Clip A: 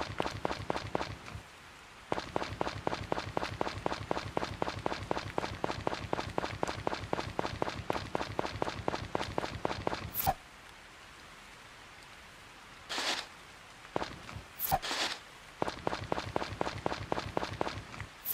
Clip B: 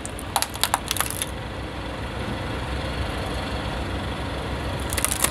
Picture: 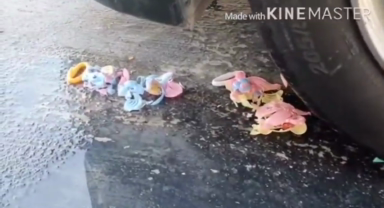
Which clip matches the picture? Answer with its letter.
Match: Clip B